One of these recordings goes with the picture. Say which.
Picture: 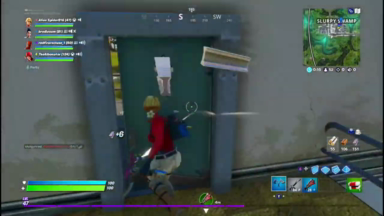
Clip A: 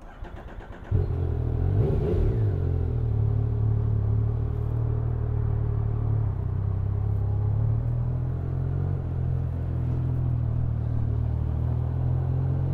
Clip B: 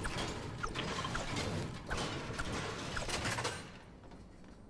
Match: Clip B